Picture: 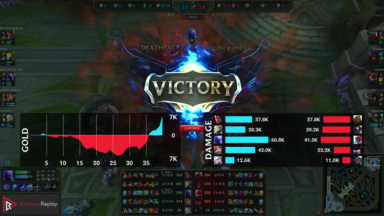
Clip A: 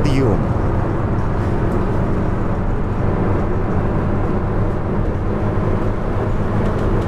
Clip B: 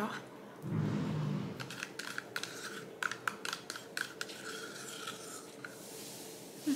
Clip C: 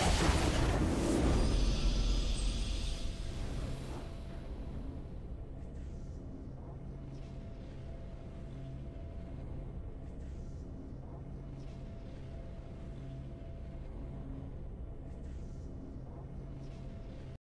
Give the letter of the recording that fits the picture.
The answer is C